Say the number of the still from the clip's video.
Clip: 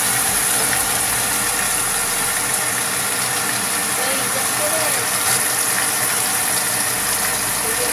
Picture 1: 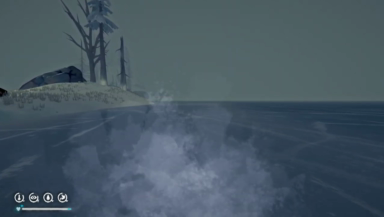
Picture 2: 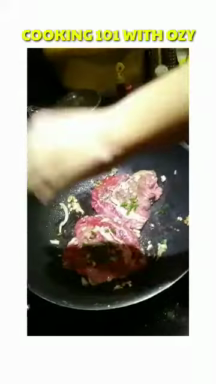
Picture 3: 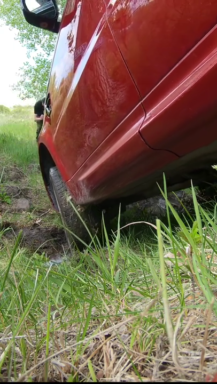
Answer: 2